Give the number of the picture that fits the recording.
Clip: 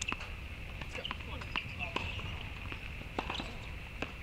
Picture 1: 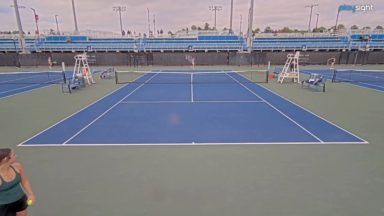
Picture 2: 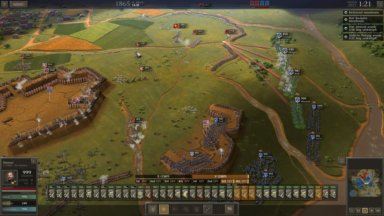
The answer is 1